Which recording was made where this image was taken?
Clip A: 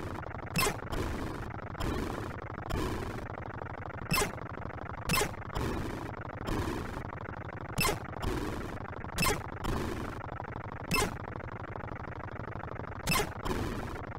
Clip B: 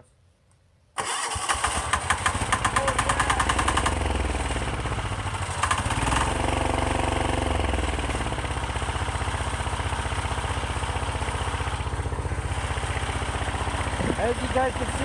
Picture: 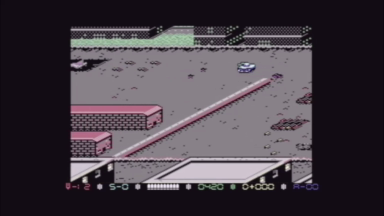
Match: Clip A